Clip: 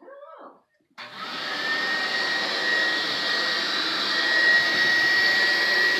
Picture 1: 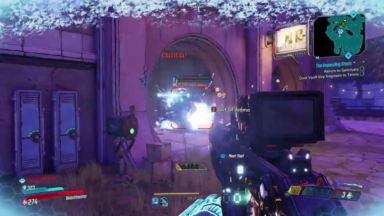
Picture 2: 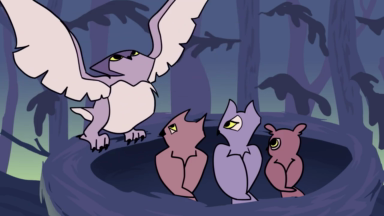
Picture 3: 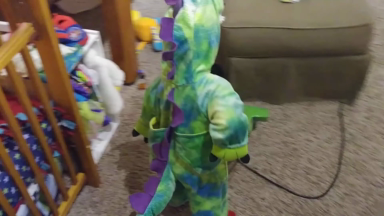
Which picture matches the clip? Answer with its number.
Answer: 3